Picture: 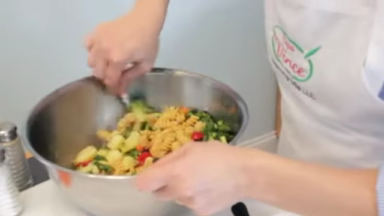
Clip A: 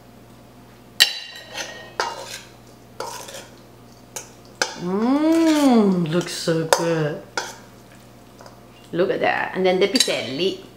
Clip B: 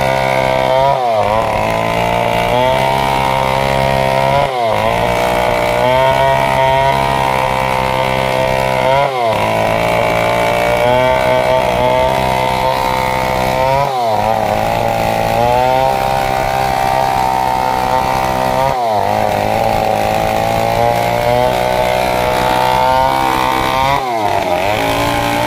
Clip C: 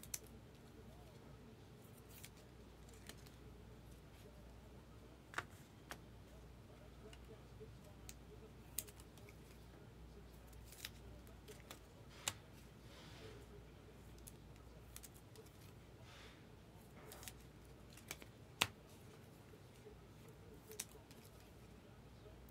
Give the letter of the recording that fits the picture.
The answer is A